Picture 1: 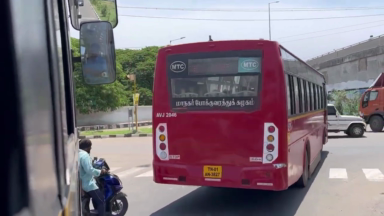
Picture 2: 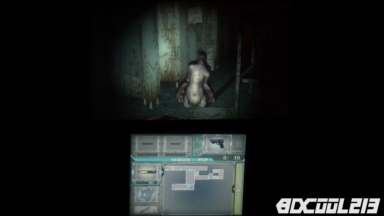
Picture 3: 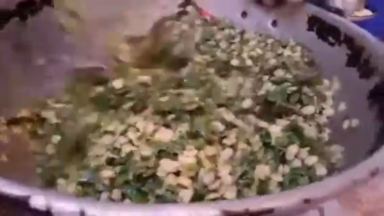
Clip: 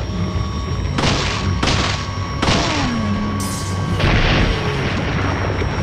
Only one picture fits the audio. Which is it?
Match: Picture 2